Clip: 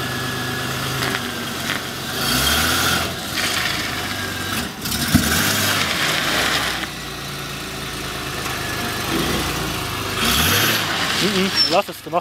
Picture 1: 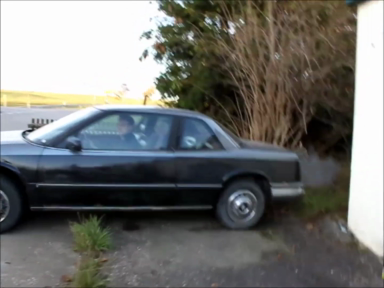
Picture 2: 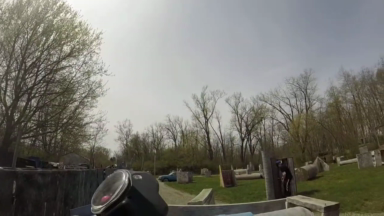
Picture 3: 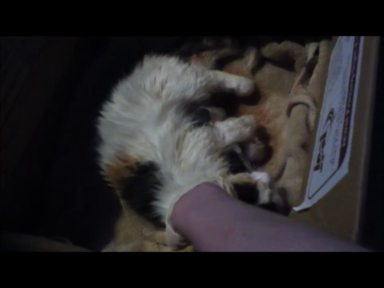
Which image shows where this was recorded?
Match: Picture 1